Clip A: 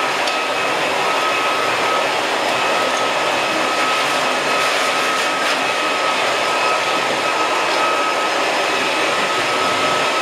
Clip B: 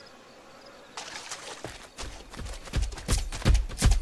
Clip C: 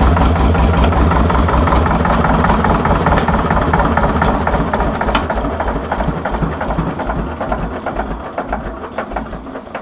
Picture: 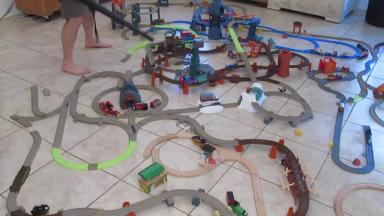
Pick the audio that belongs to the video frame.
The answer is A